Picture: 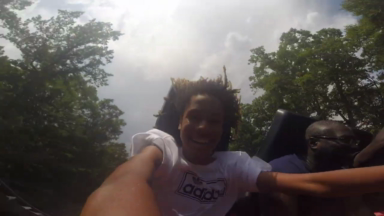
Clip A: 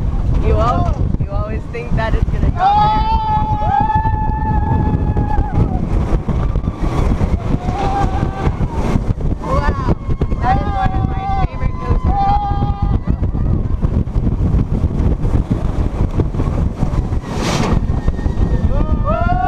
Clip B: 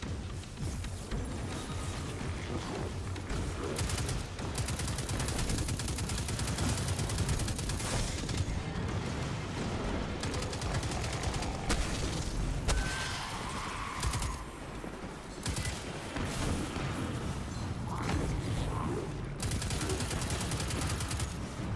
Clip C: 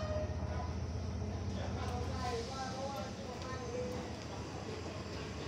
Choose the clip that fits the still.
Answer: A